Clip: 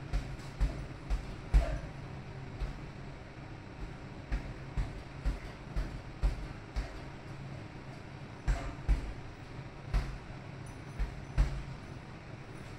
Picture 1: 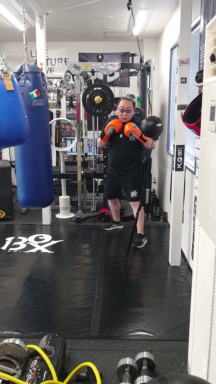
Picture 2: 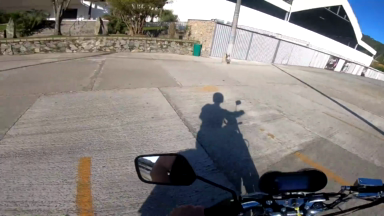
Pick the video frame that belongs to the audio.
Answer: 1